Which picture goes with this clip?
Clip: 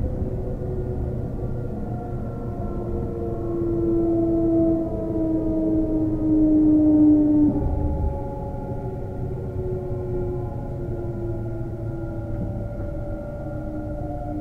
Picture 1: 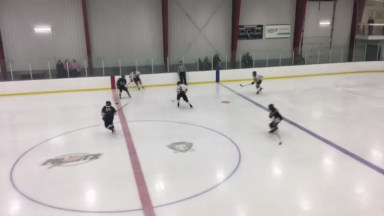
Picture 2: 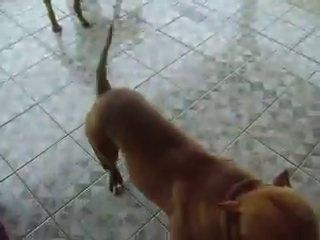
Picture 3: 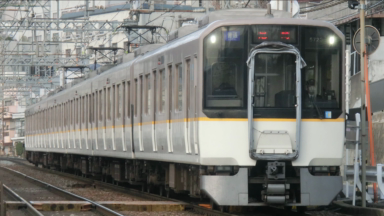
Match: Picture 3